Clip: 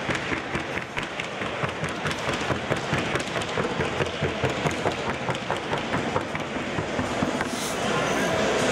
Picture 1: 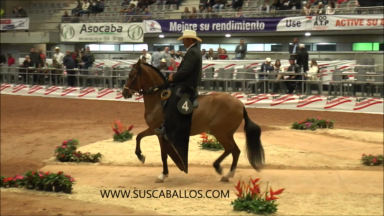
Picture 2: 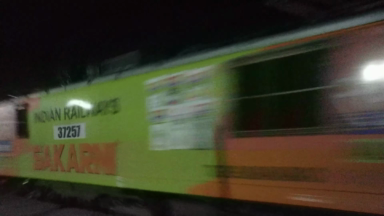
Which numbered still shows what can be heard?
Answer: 1